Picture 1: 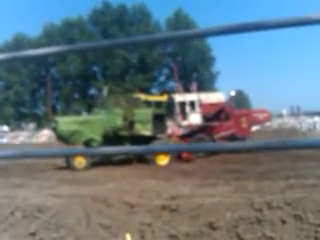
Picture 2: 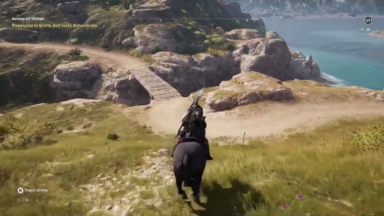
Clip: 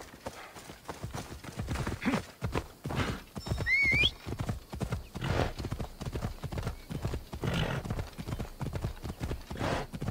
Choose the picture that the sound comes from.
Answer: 2